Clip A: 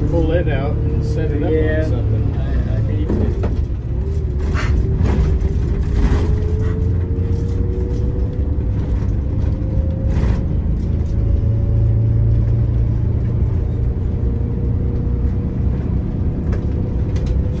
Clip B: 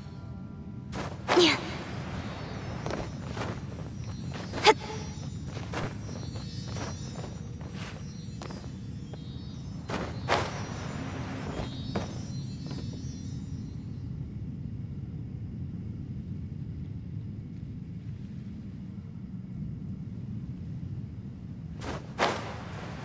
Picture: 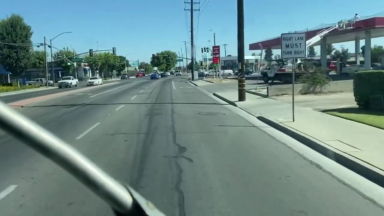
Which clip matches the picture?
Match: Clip A